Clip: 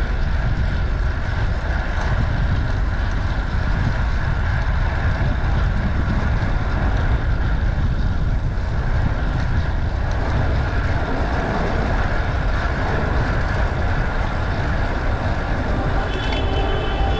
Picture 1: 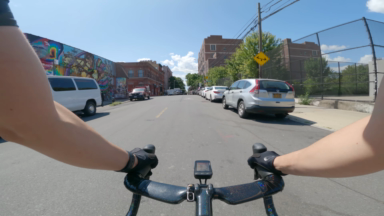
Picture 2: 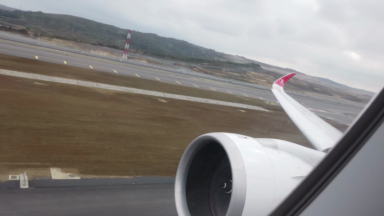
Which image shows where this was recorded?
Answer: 1